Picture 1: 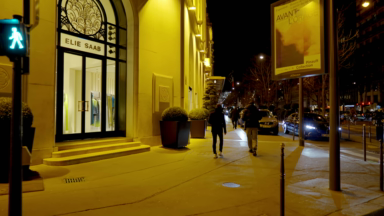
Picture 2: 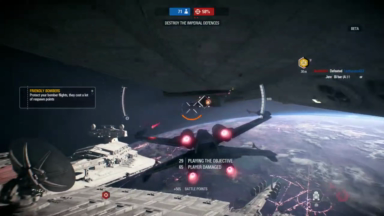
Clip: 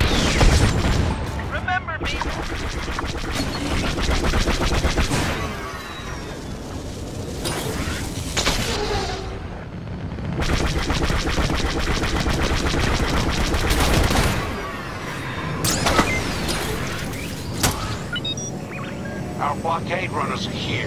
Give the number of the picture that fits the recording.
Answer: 2